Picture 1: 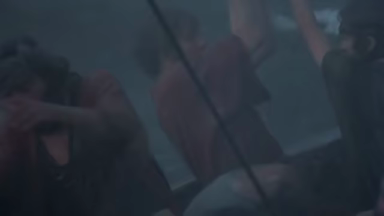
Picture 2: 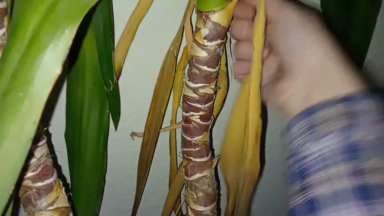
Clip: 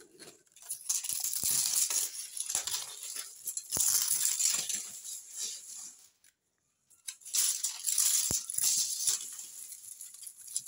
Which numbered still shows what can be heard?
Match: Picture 2